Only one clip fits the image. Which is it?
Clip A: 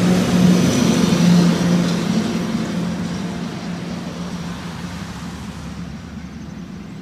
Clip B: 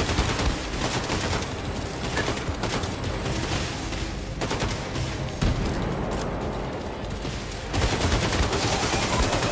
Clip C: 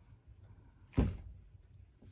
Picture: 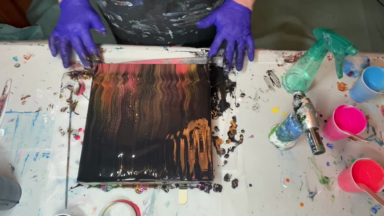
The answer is C